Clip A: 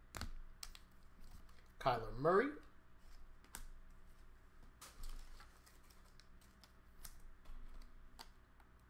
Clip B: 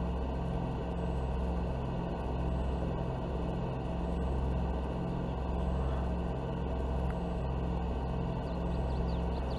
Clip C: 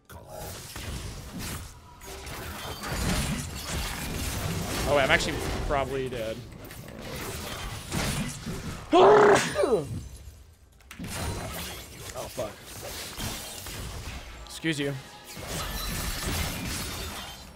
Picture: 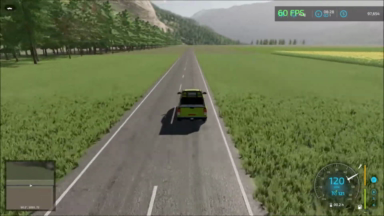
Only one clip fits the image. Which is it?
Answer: B